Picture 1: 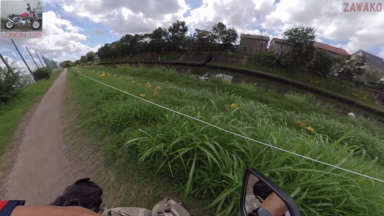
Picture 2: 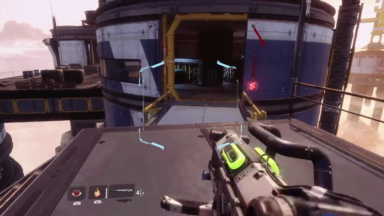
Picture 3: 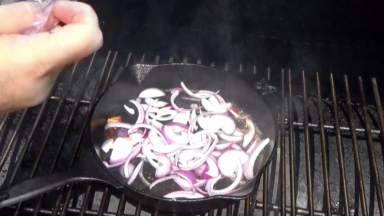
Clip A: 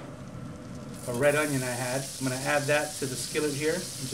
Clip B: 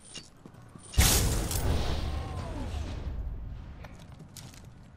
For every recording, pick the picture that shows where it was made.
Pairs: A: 3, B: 2